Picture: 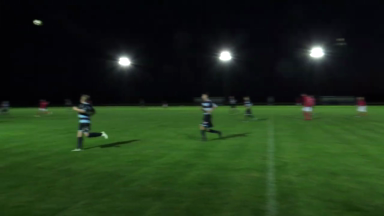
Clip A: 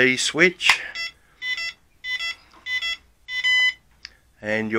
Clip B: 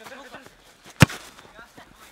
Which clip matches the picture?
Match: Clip B